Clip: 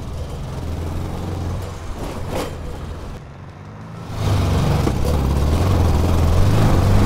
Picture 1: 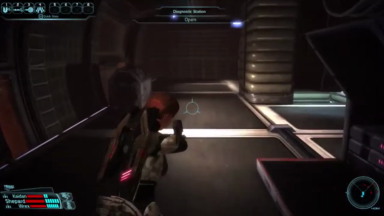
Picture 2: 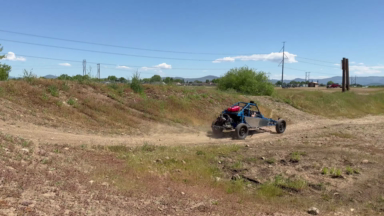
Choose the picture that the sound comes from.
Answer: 2